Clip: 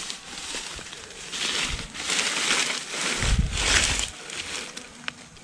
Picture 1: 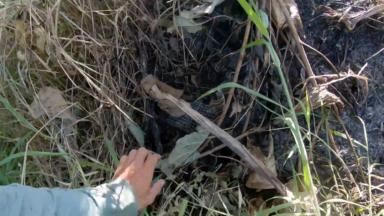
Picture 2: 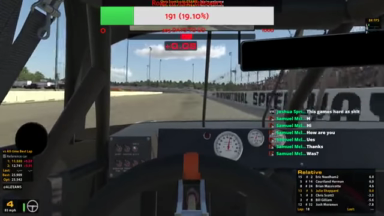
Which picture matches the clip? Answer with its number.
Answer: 1